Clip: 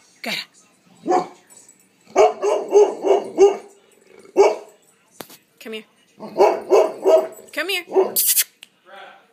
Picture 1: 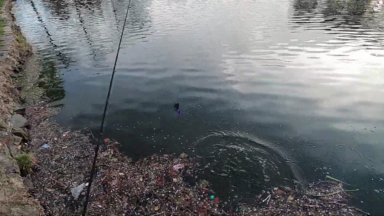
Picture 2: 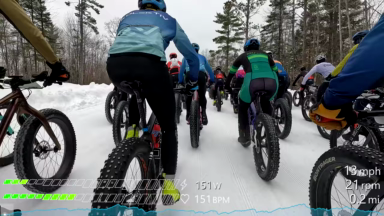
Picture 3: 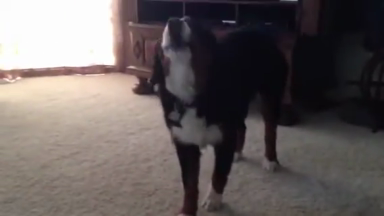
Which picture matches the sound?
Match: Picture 3